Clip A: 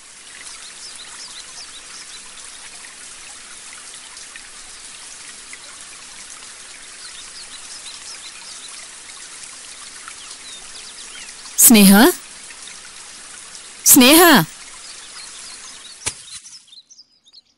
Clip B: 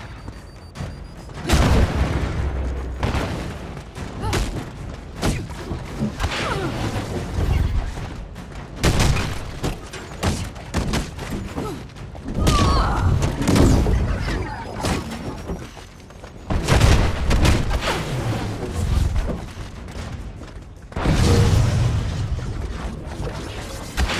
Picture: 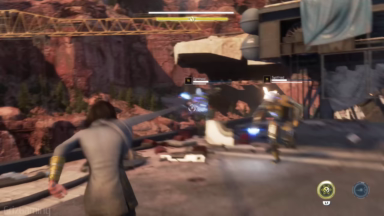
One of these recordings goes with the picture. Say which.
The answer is B